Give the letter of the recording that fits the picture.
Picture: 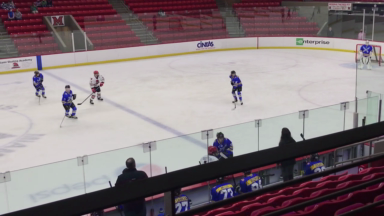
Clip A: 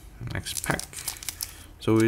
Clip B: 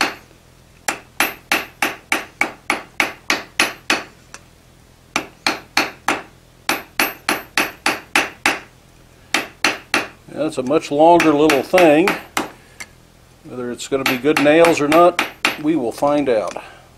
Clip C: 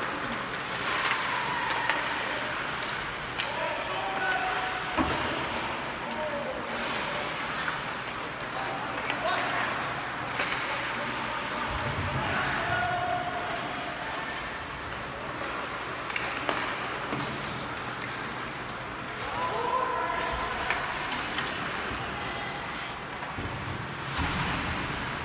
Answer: C